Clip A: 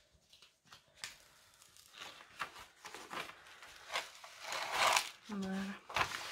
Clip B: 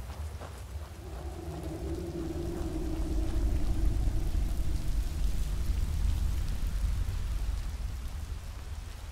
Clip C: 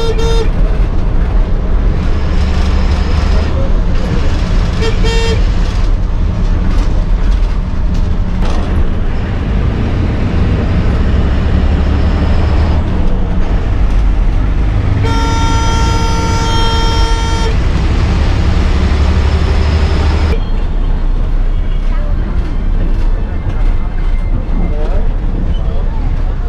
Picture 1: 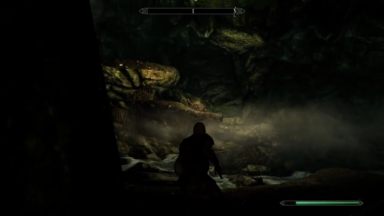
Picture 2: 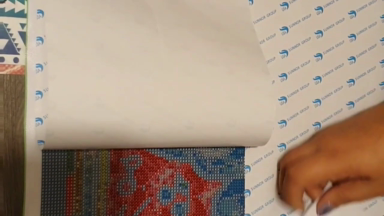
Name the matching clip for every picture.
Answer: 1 B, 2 A